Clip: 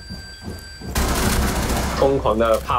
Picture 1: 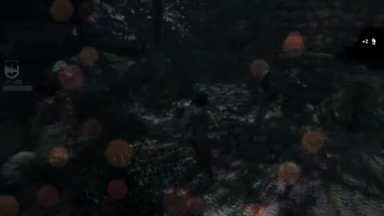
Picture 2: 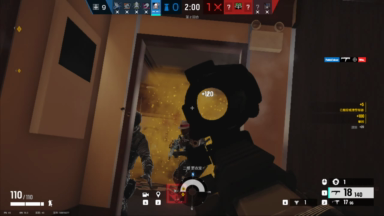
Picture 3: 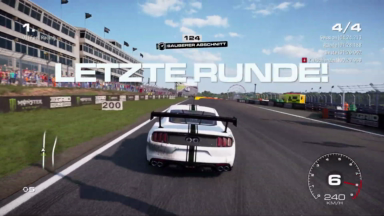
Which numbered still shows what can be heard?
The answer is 2